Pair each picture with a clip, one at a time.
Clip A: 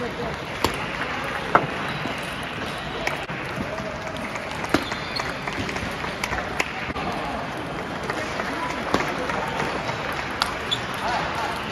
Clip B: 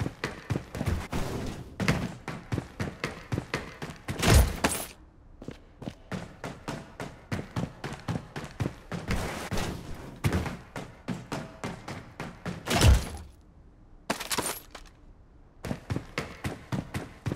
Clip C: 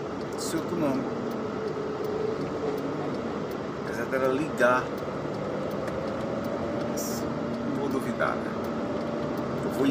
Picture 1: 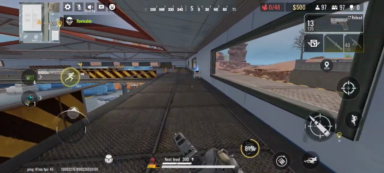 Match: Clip B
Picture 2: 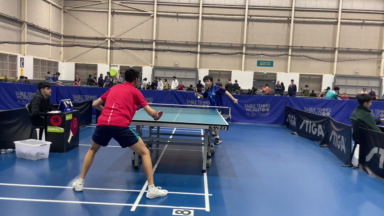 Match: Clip A